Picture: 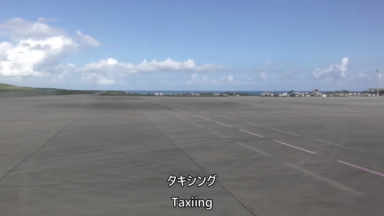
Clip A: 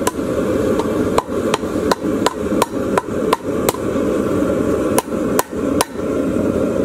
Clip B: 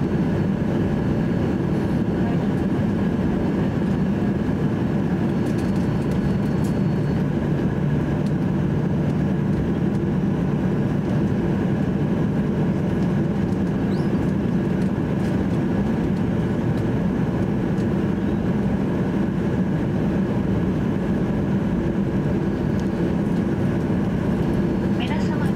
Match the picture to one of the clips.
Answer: B